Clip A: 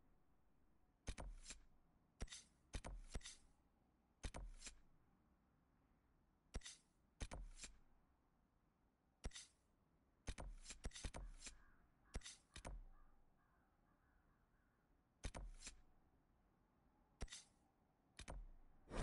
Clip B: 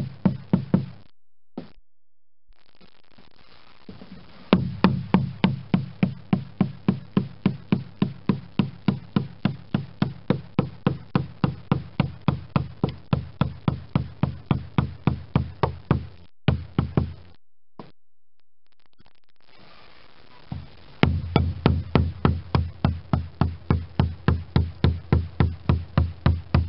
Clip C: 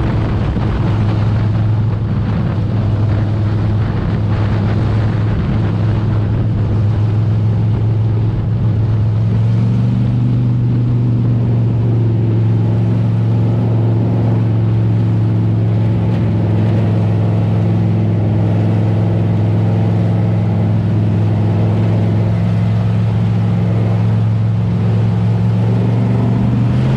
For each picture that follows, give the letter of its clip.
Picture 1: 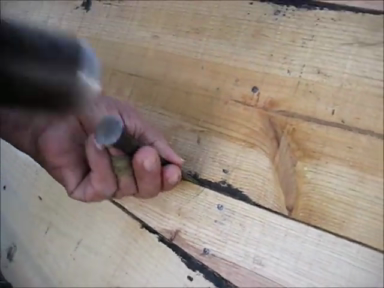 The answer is B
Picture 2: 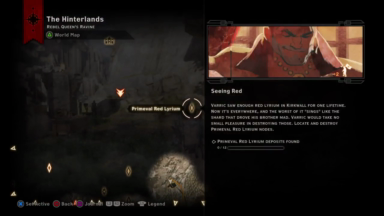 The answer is A